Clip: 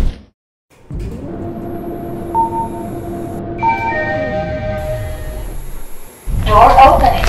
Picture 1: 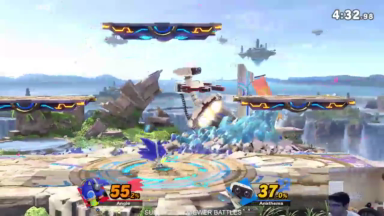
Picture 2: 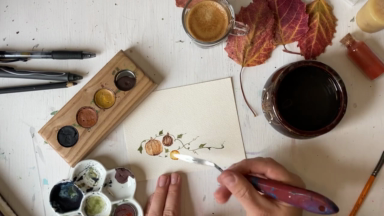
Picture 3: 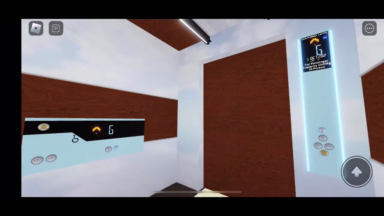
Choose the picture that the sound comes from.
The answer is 3